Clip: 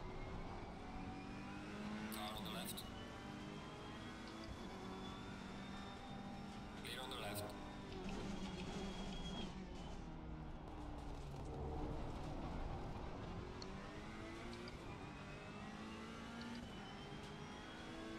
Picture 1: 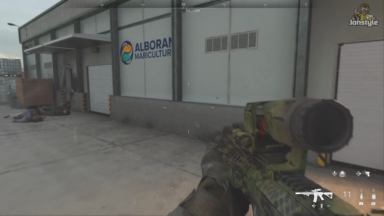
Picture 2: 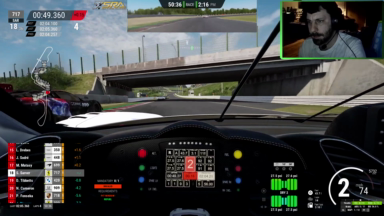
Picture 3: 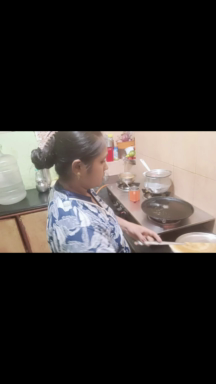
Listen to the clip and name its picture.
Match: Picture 2